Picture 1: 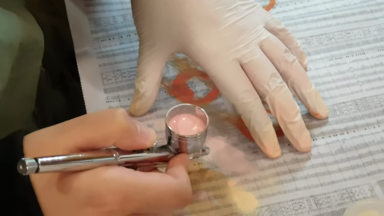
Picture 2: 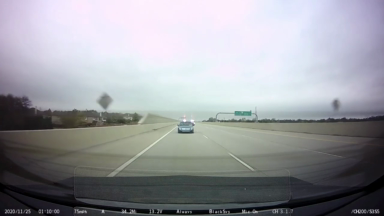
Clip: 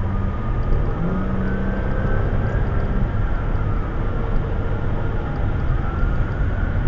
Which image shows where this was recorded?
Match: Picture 2